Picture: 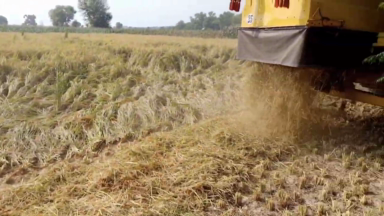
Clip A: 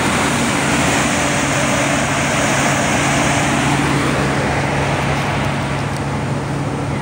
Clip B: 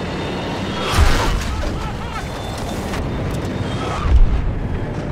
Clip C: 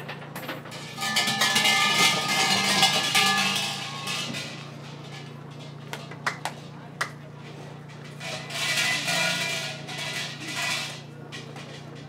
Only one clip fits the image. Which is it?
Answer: A